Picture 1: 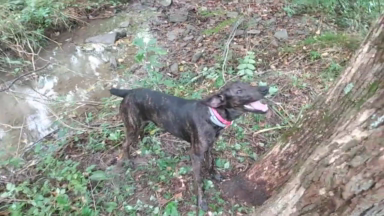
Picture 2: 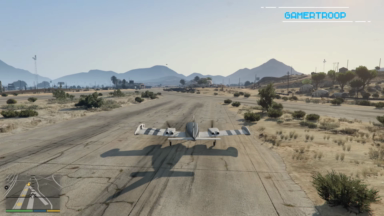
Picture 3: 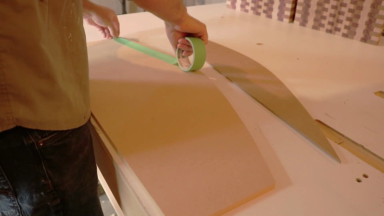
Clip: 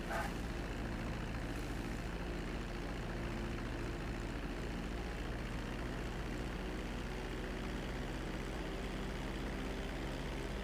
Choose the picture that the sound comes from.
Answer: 2